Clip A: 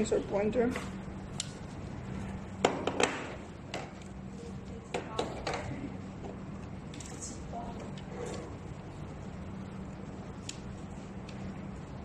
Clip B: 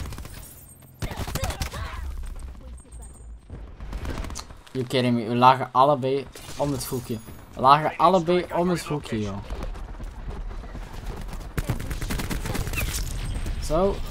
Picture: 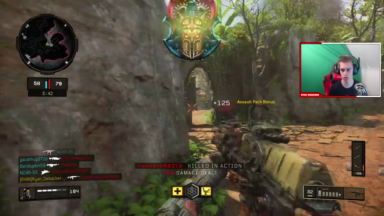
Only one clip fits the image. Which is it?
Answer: B